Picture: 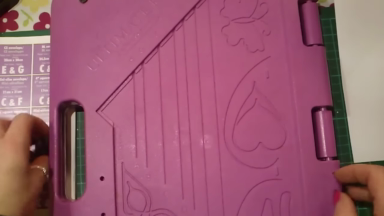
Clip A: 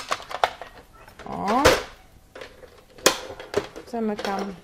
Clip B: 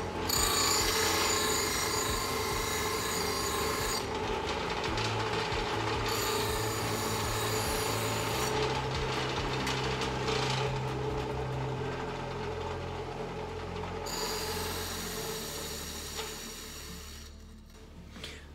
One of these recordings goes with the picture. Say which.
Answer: A